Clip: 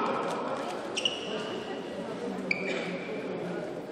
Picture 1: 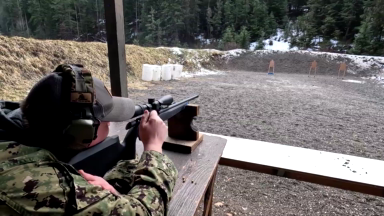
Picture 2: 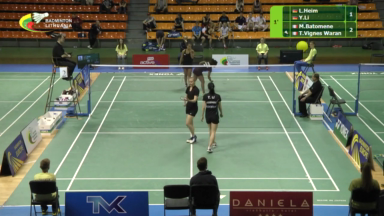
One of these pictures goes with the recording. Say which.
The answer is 2